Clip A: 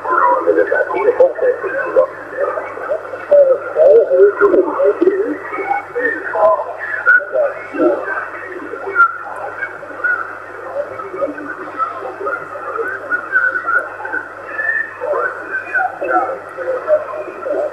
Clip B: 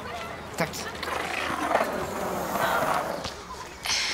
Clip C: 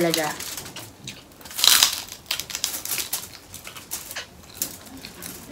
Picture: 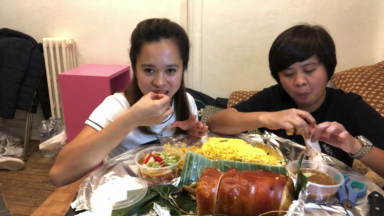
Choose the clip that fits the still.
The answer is C